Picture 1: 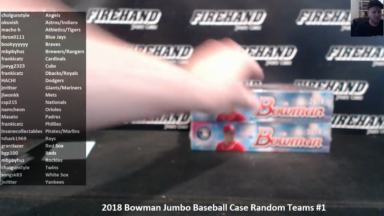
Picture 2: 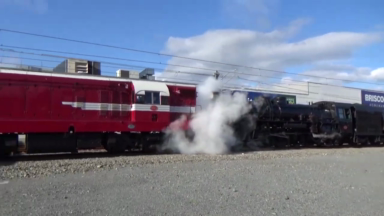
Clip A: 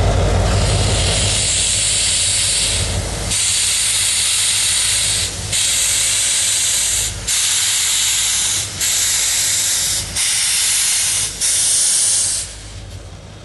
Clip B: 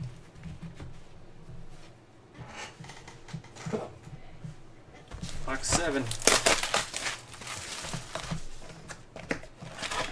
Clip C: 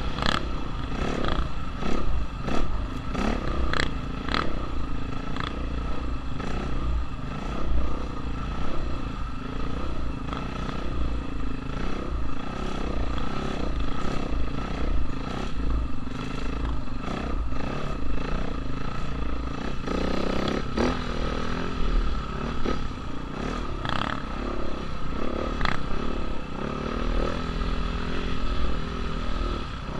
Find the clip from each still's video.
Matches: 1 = B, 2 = A